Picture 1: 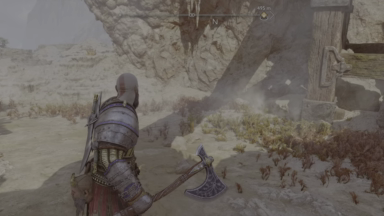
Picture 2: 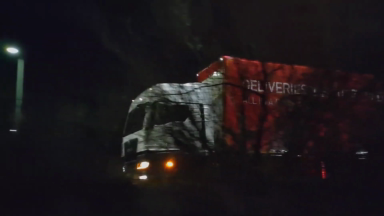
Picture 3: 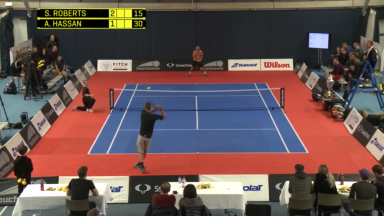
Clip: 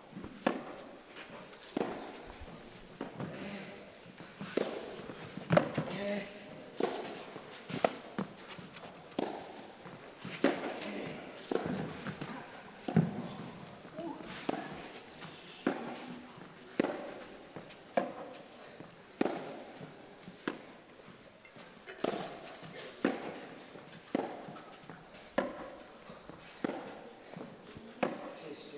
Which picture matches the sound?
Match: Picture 3